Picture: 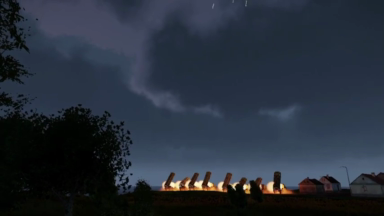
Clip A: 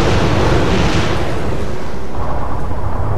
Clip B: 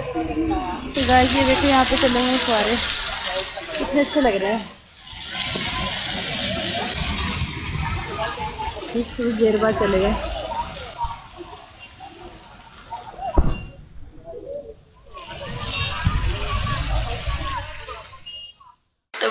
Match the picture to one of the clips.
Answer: A